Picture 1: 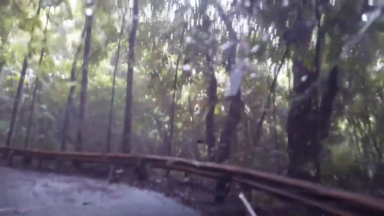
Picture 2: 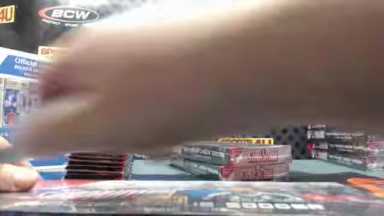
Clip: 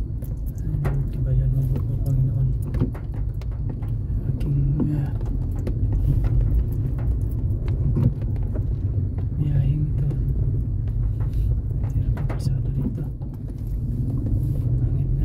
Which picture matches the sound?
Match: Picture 1